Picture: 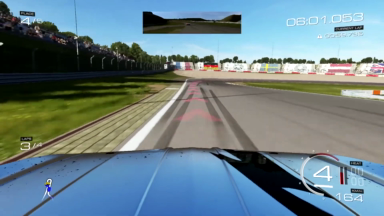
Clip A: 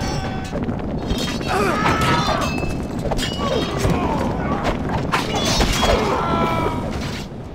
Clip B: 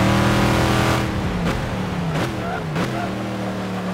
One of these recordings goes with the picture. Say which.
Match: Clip B